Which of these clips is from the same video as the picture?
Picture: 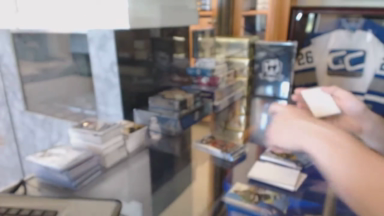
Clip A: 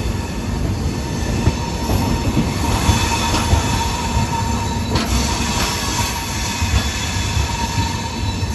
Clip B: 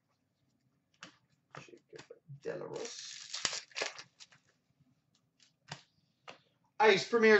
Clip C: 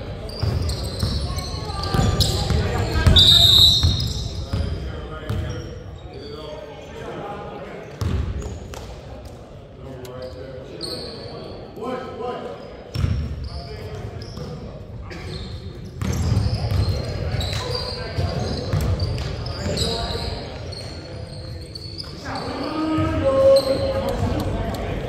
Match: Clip B